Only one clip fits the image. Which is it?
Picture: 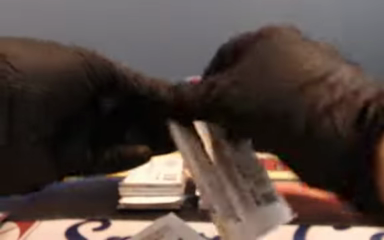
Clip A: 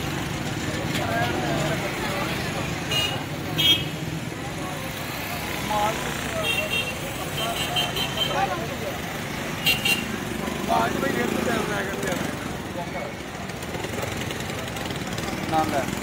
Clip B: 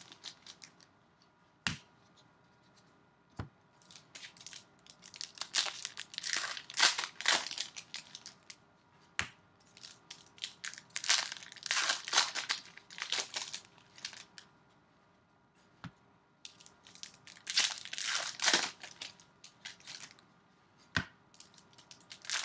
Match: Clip B